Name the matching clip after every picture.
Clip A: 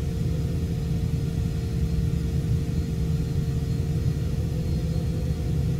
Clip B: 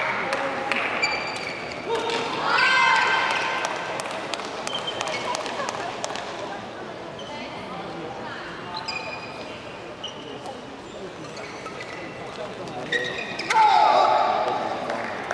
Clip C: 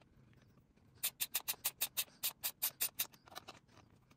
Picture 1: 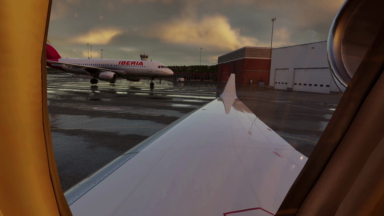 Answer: A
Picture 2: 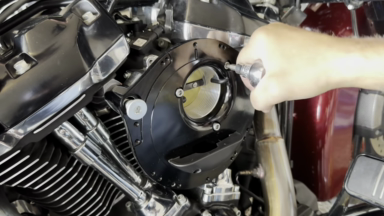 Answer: C